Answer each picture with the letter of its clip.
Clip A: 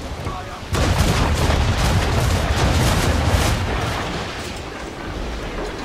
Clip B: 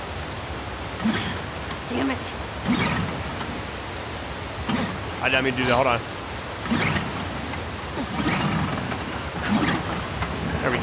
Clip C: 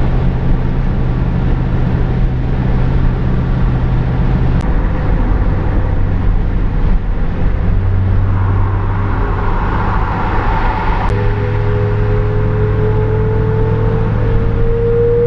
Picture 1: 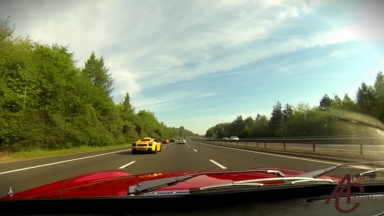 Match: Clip C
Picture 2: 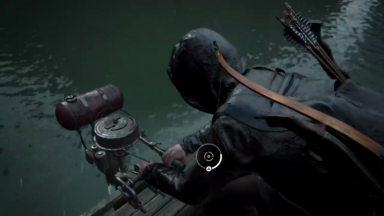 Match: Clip B